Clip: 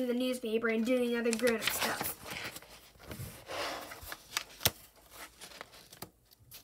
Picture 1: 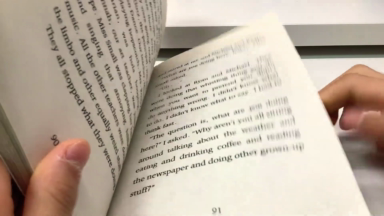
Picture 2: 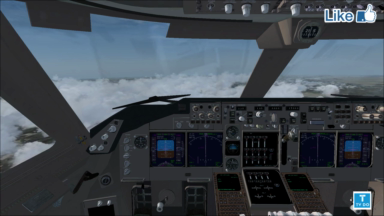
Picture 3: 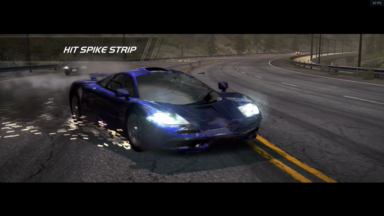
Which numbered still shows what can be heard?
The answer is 1